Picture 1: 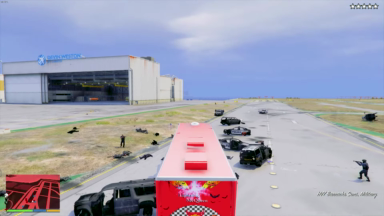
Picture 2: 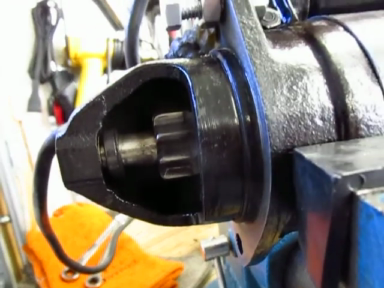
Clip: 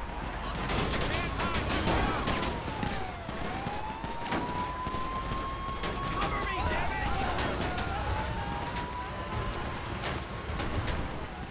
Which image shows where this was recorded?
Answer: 1